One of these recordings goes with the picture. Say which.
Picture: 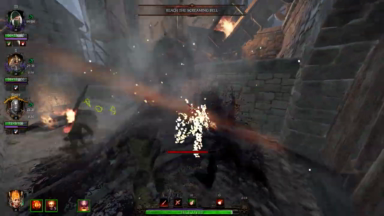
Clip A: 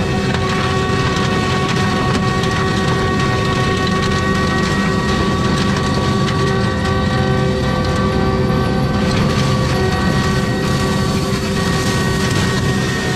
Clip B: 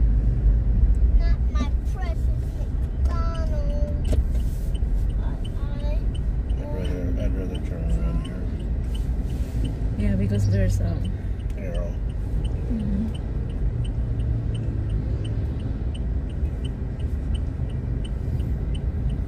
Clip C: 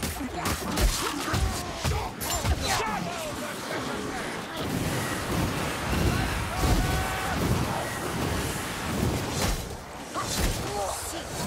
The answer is C